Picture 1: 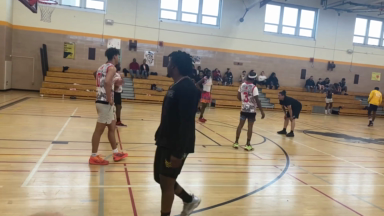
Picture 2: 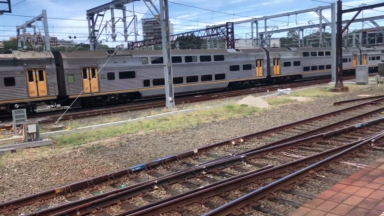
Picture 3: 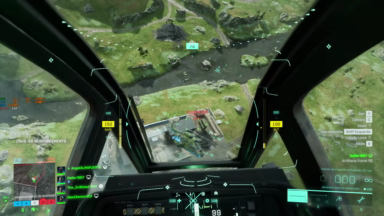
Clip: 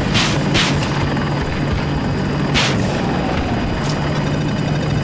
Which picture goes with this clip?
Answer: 3